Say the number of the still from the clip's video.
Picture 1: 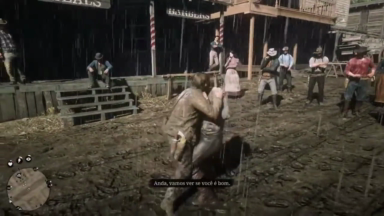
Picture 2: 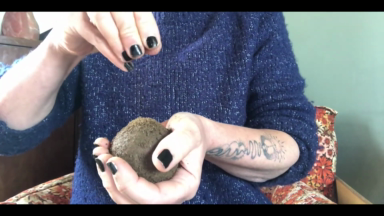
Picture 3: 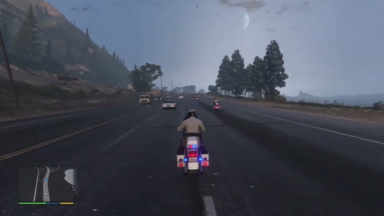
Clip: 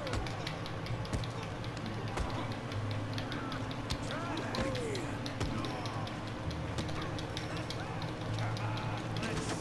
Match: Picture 1